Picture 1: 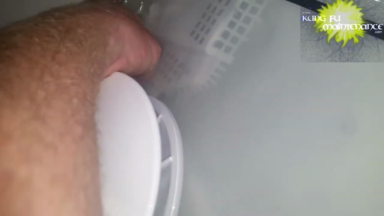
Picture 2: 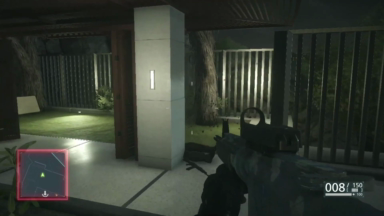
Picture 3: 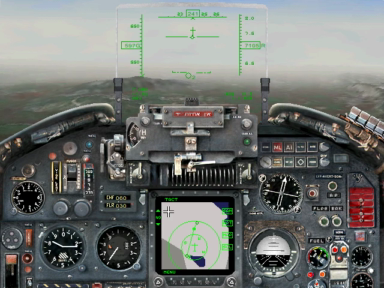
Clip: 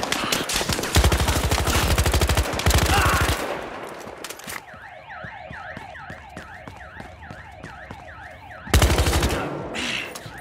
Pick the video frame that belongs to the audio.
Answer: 2